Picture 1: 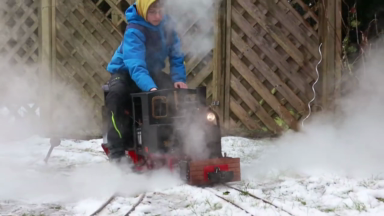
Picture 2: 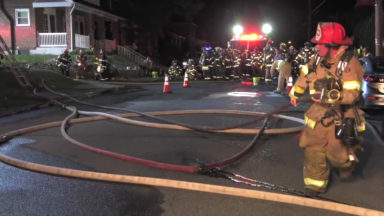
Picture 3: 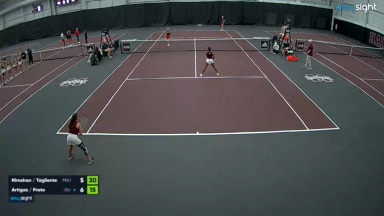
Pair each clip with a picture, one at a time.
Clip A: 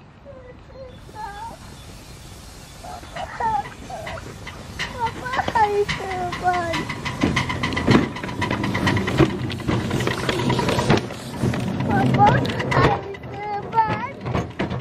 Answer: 1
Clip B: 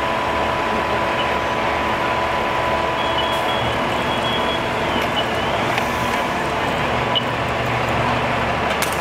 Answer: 2